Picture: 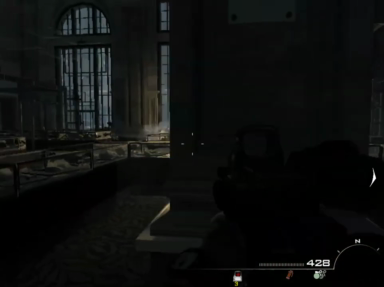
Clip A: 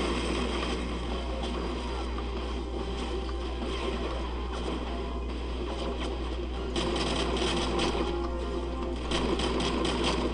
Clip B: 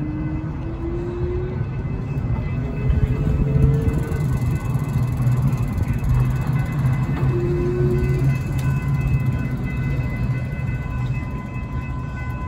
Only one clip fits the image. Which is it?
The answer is A